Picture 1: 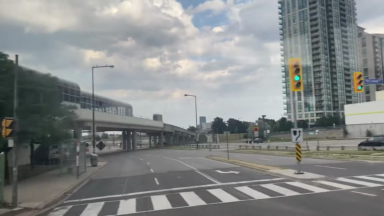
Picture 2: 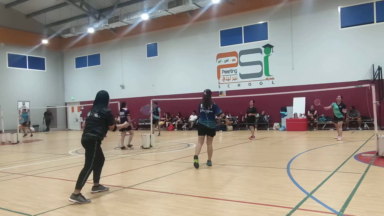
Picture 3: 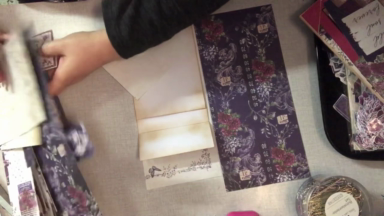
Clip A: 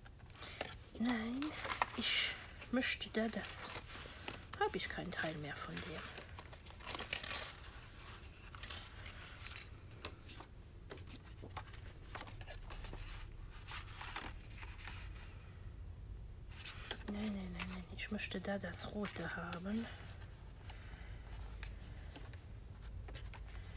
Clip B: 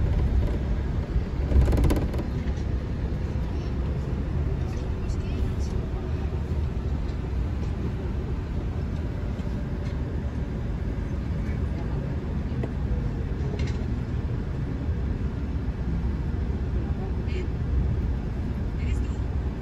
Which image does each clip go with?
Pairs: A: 3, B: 1